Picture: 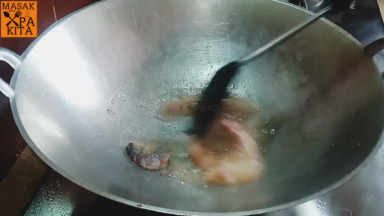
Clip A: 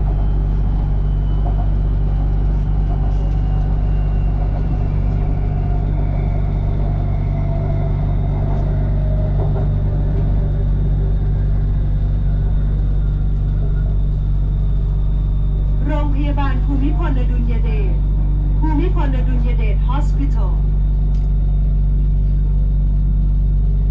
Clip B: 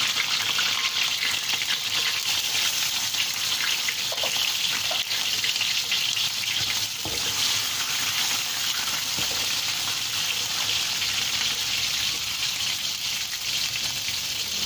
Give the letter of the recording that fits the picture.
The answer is B